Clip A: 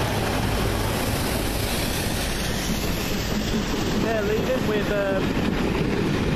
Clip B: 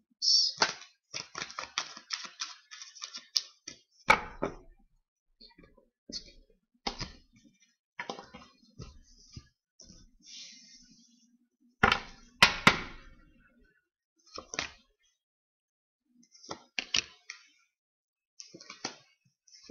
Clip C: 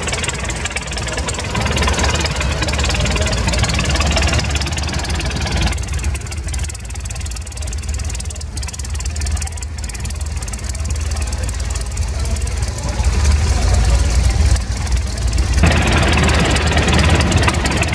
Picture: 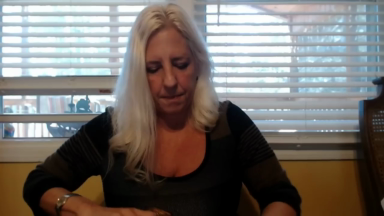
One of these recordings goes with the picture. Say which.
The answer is B